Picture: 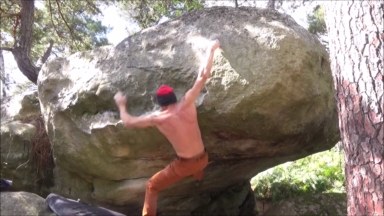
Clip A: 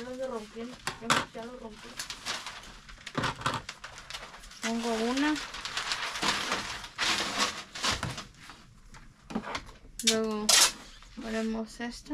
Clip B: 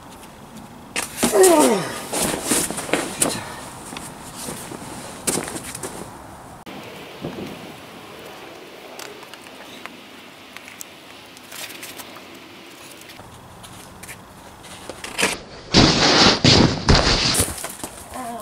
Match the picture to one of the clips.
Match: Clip B